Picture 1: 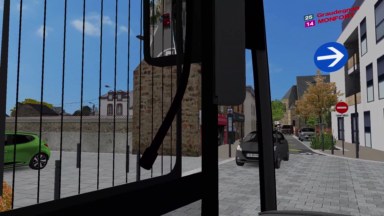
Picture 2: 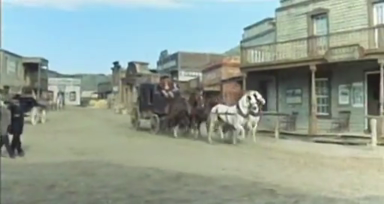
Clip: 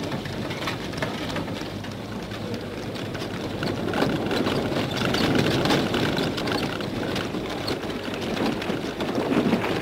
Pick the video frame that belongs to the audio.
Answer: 2